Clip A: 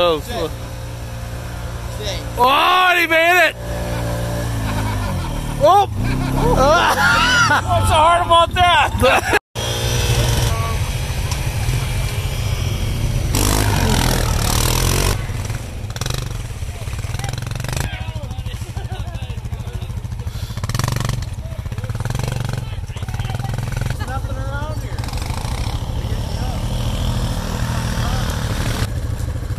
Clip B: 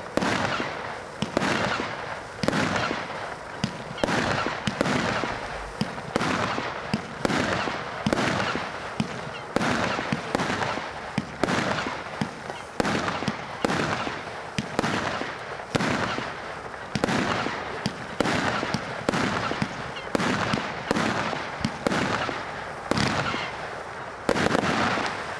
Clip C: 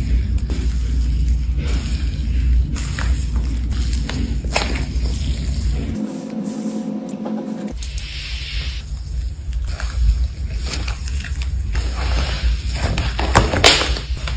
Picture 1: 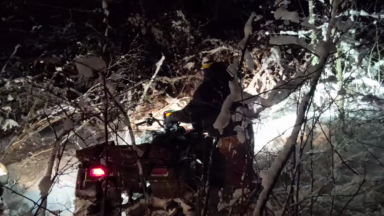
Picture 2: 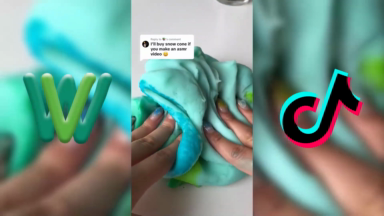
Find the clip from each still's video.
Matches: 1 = A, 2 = C